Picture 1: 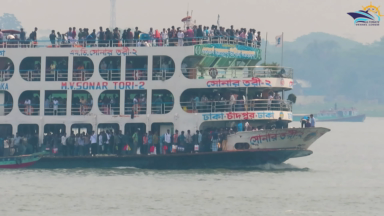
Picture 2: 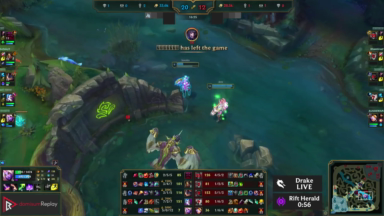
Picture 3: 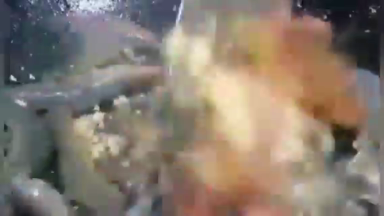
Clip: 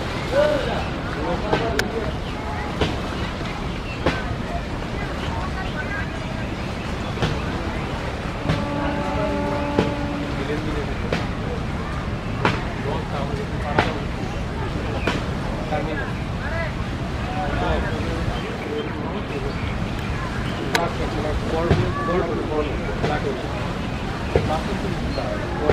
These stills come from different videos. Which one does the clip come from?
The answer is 1